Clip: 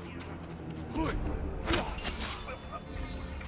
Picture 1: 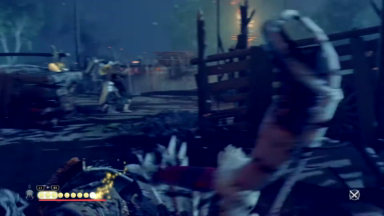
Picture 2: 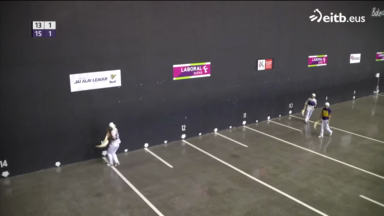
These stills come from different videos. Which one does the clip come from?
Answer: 1